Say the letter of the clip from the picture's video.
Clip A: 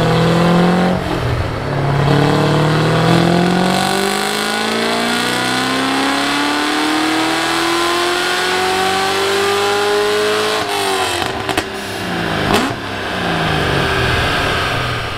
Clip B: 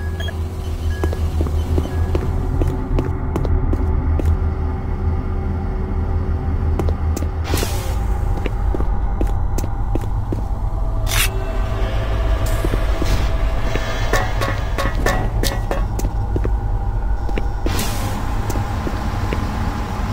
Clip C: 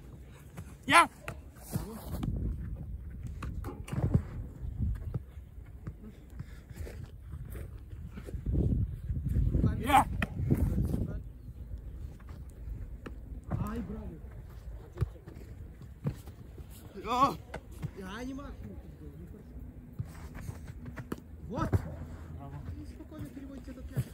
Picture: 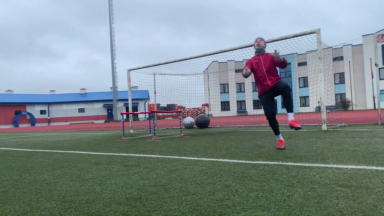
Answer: C